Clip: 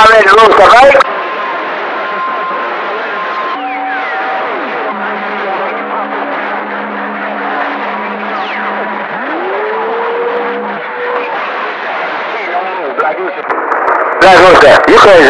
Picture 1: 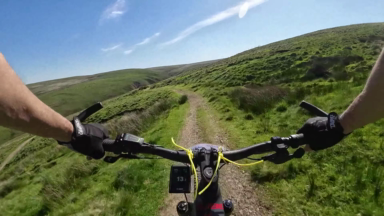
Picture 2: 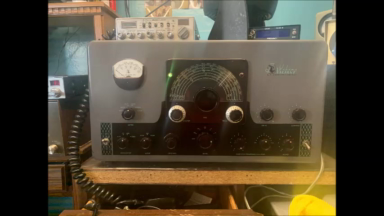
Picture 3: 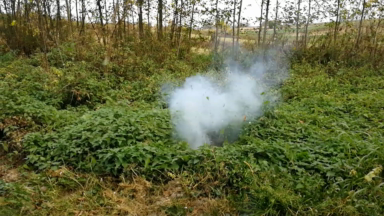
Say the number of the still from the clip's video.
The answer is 2